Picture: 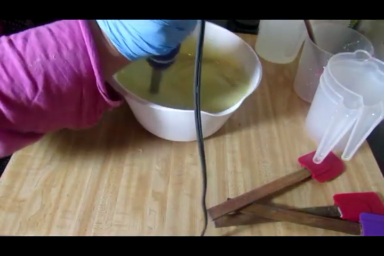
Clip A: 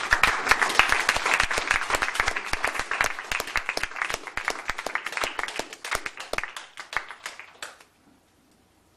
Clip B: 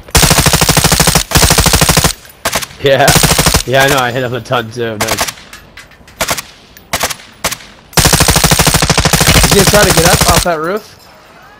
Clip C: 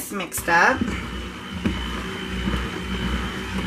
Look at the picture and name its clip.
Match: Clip C